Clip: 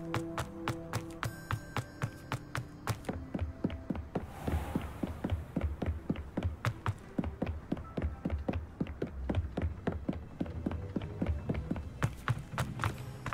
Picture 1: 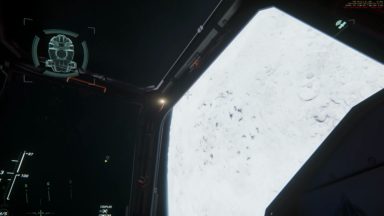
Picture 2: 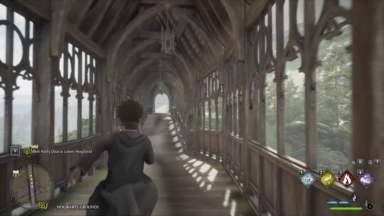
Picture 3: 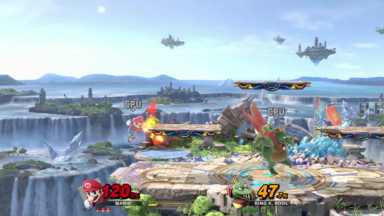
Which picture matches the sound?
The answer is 2